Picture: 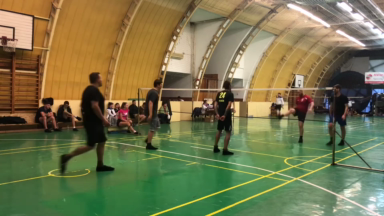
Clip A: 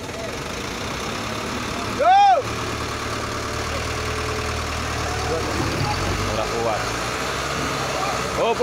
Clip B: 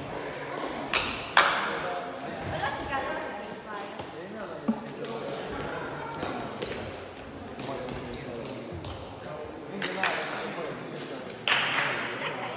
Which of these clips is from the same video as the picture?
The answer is B